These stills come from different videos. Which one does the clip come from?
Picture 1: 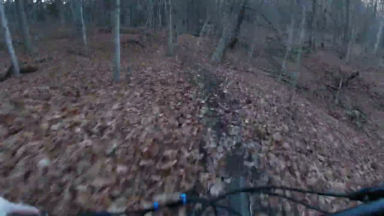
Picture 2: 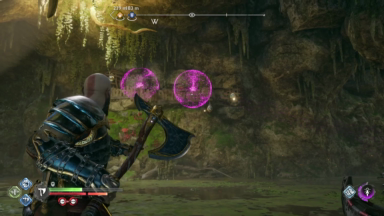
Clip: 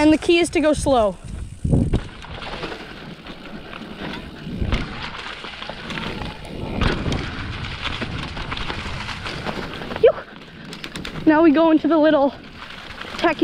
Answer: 1